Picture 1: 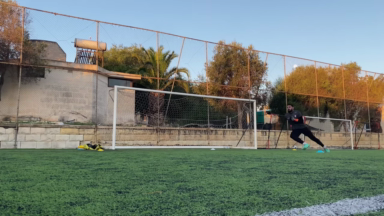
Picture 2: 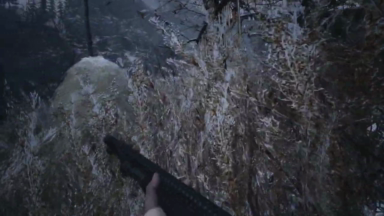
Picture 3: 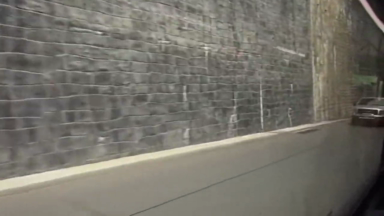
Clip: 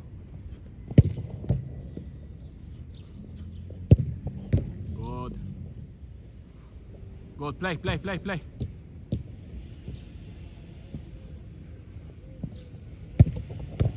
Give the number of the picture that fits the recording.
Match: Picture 1